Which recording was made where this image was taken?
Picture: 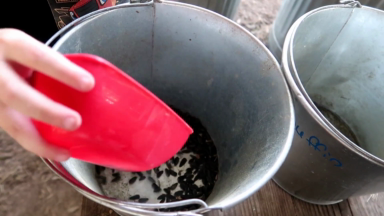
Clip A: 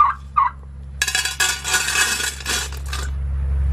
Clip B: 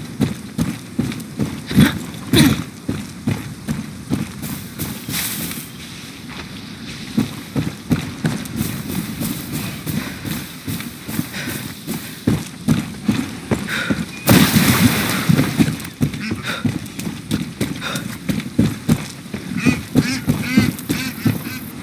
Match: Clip A